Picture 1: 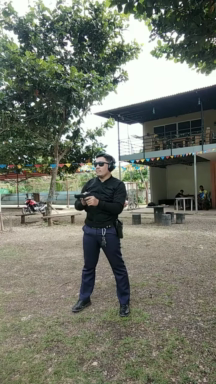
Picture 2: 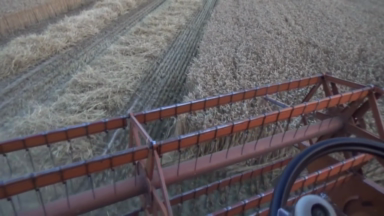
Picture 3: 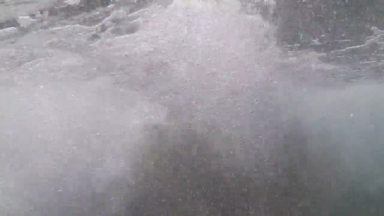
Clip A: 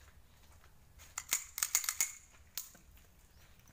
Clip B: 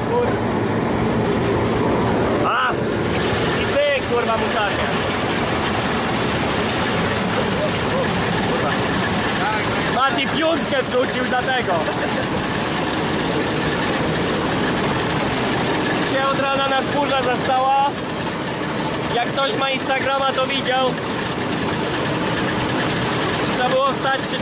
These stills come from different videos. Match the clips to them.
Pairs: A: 1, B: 2